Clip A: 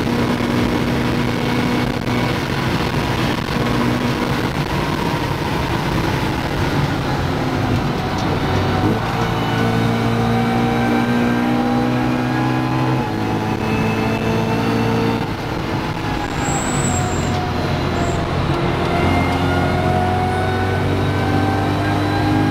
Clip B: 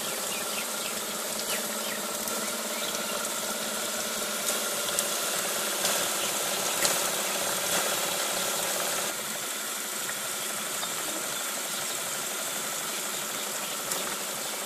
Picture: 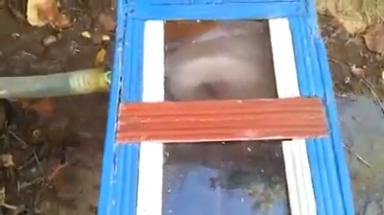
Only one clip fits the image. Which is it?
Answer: B